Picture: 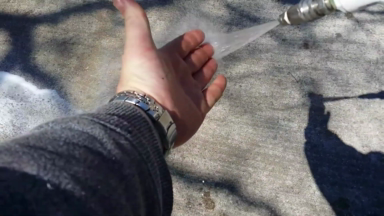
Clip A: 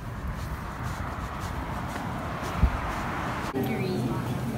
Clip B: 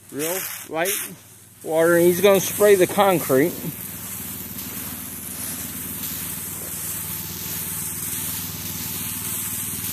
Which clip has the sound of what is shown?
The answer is B